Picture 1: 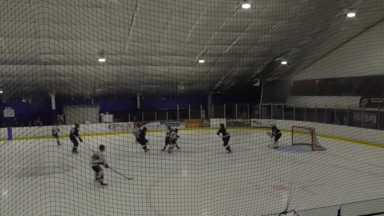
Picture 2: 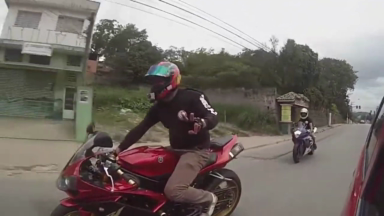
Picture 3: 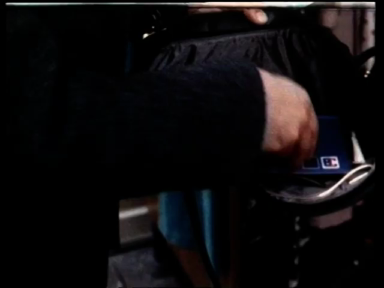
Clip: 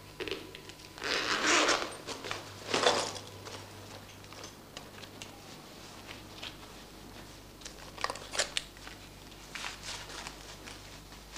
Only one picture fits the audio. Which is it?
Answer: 3